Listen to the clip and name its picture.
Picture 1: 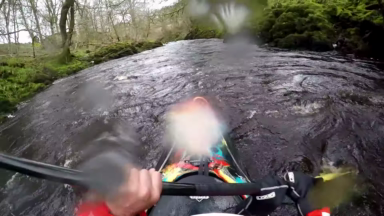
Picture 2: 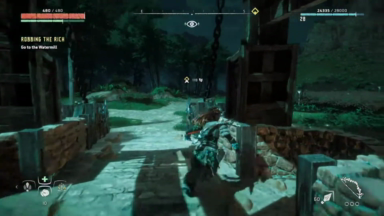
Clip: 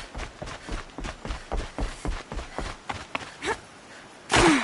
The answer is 2